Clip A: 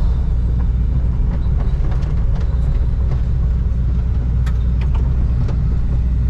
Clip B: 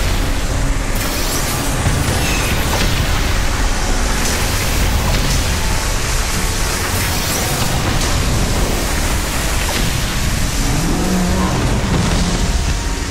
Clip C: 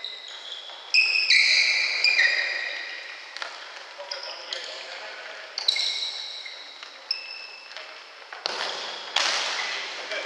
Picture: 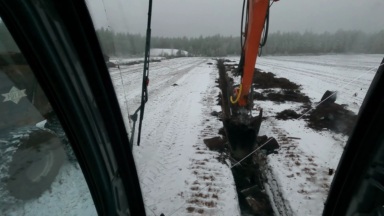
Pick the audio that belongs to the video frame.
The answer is A